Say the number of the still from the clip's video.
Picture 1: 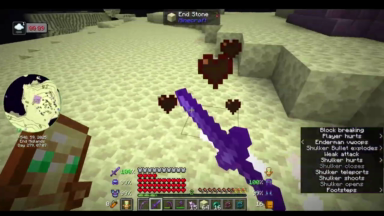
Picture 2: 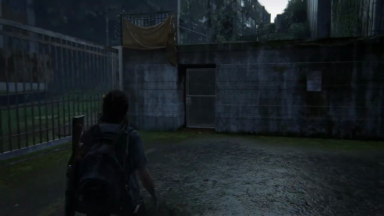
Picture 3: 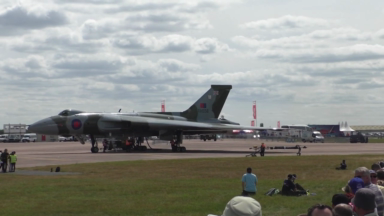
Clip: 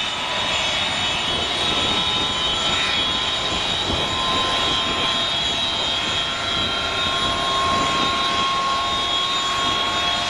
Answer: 3